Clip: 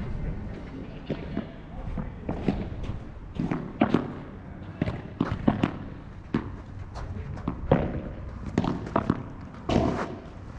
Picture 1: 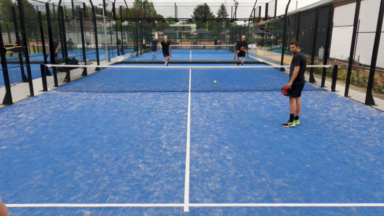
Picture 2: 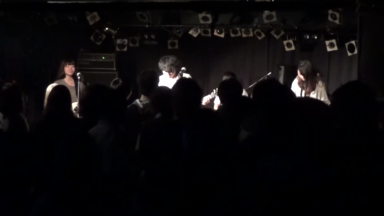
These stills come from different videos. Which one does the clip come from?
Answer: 1